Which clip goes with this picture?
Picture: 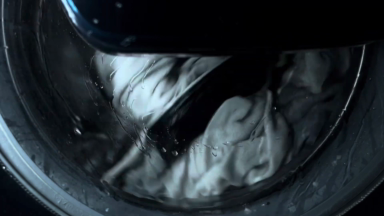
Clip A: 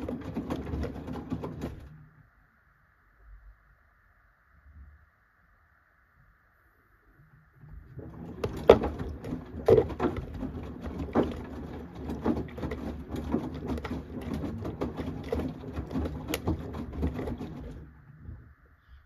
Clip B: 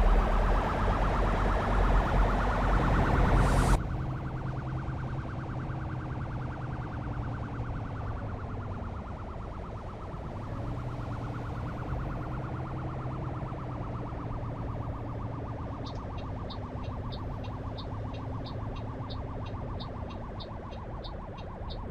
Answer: A